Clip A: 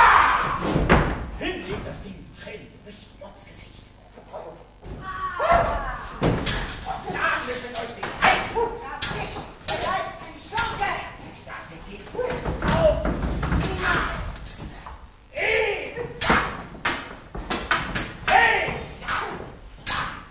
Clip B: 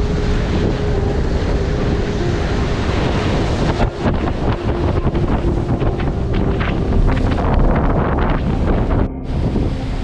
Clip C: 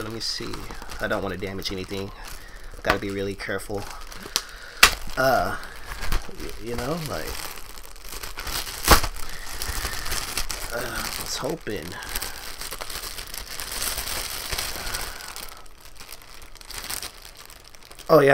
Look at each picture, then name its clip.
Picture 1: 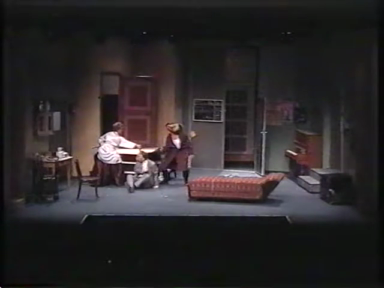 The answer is A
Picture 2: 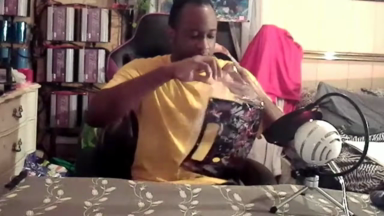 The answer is C